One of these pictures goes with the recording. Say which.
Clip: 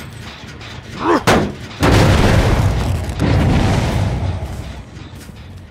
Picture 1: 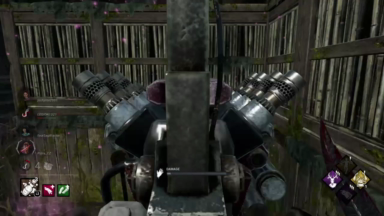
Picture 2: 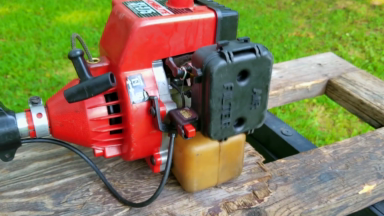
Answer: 1